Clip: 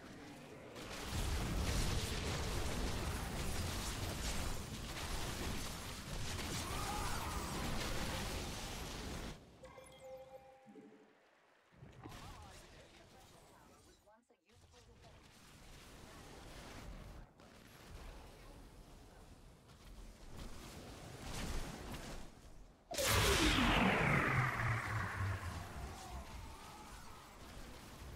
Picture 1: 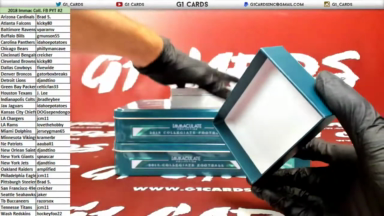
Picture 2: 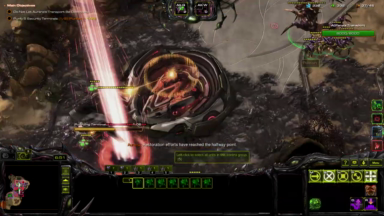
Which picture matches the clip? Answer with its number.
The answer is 2